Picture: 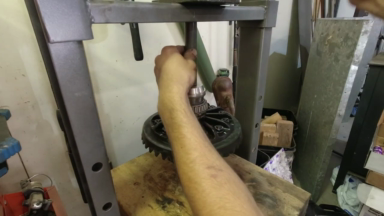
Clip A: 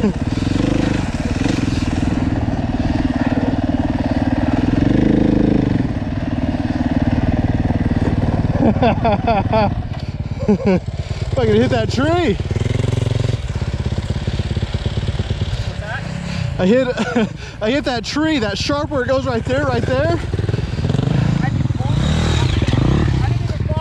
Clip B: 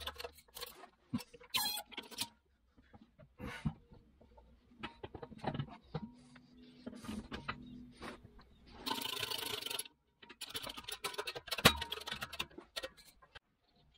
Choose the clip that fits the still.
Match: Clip B